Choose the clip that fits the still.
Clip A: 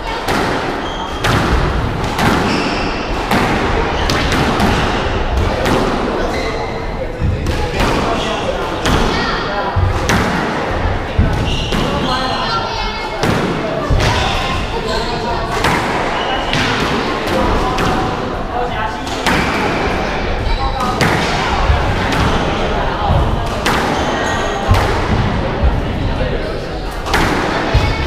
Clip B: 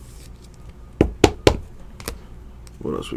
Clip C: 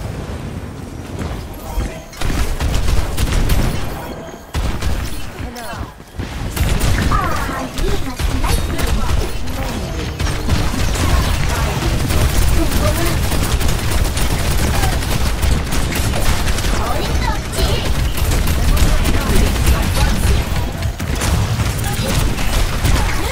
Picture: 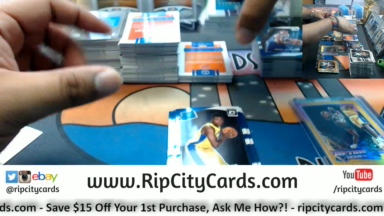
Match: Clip B